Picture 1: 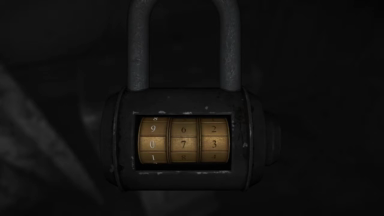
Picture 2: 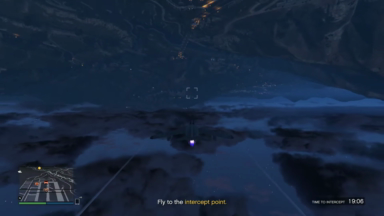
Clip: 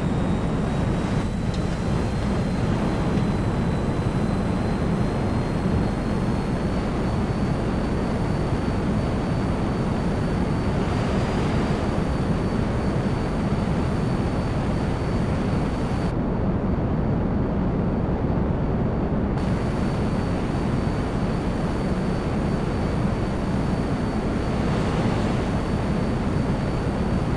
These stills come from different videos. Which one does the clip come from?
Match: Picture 2